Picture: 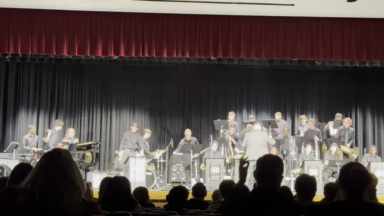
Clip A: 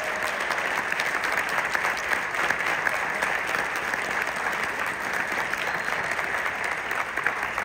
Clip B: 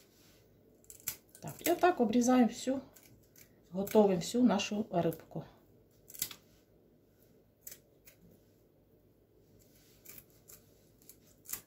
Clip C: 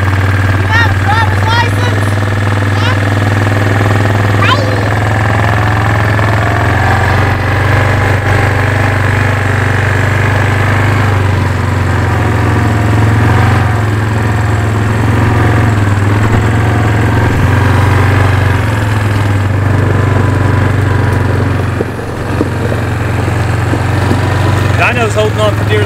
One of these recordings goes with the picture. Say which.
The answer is A